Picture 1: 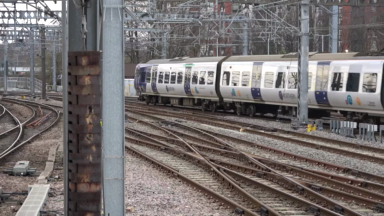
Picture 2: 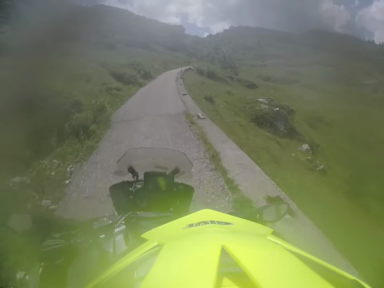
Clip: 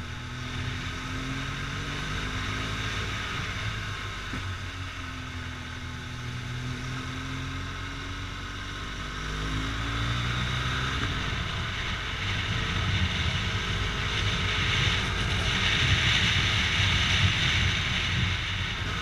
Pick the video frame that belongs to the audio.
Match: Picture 2